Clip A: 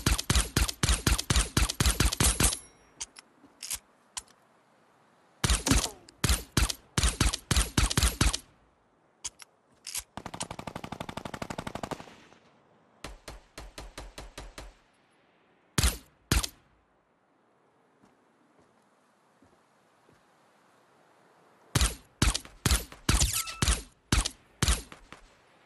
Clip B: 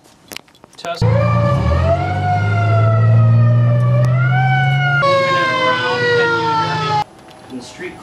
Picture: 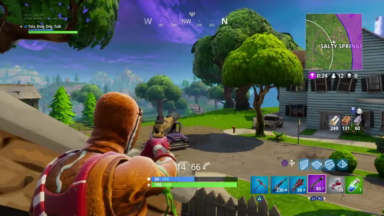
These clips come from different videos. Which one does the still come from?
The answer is A